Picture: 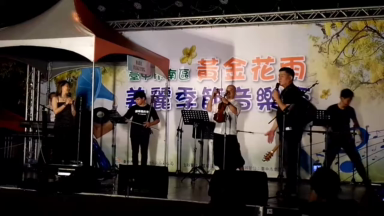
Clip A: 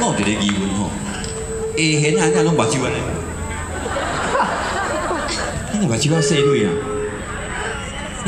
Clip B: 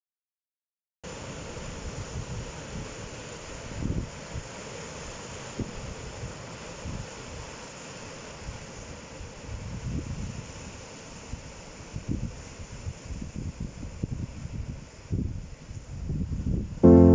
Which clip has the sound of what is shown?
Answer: A